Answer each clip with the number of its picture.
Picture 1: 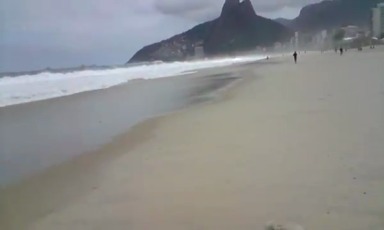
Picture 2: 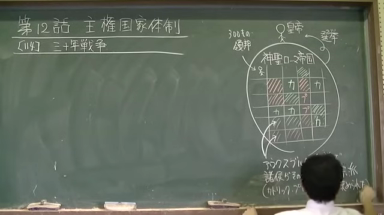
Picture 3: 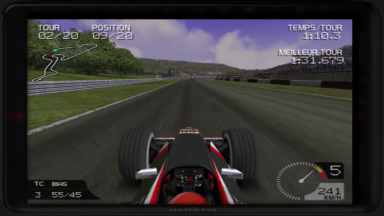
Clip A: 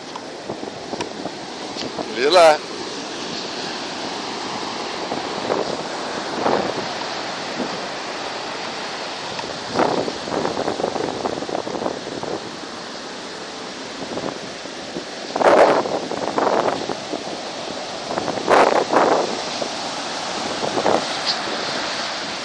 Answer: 1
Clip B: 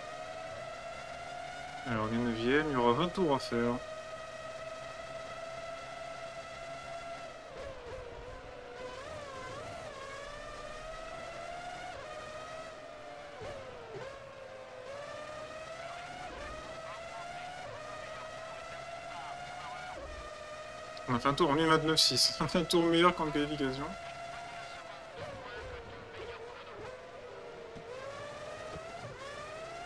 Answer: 3